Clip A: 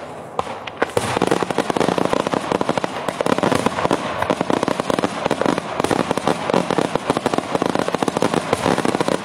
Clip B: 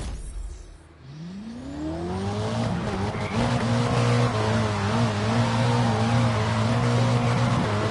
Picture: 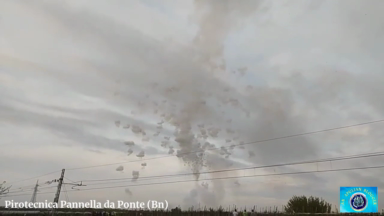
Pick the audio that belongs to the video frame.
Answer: A